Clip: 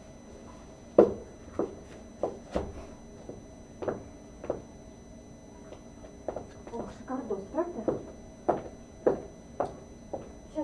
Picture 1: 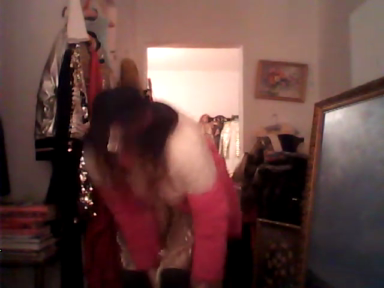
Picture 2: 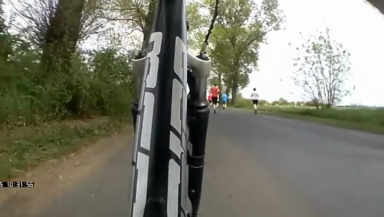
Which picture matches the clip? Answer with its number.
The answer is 1